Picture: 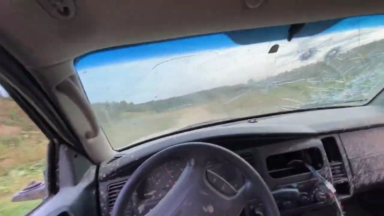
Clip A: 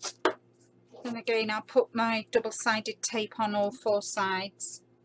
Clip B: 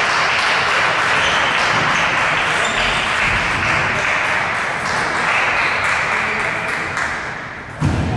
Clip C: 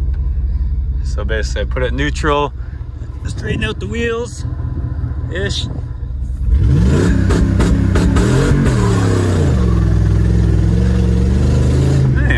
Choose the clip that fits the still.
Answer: C